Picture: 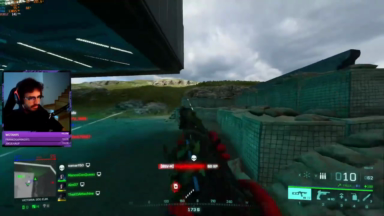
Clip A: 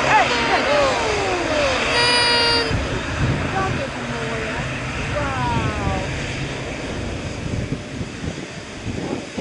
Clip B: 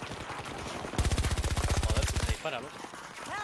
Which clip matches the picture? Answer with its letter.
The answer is B